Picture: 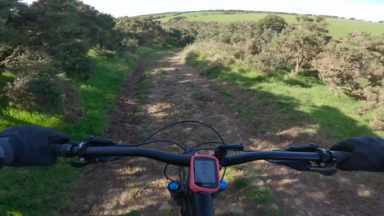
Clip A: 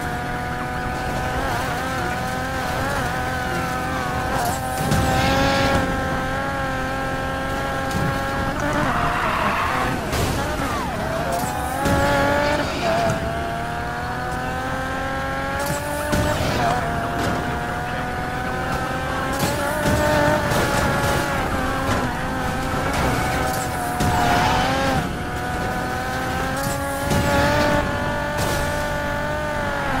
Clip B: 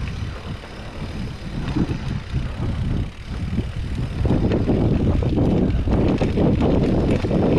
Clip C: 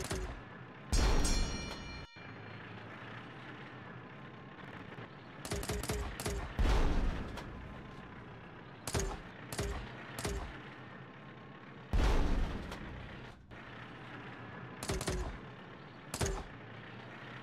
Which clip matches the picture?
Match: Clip B